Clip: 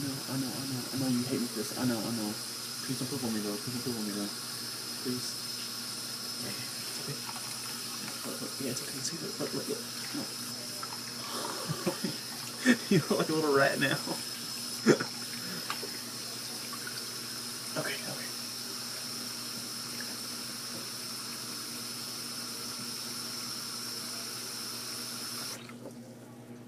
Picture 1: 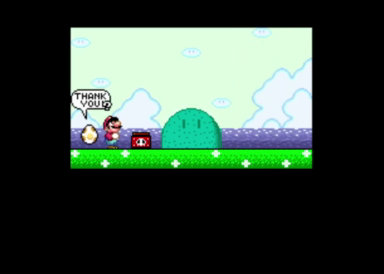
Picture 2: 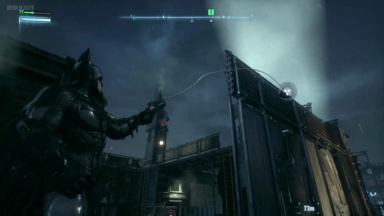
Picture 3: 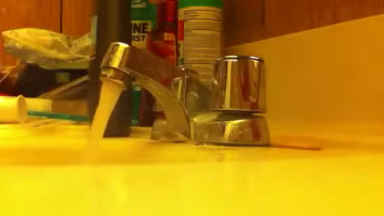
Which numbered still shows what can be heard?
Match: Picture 3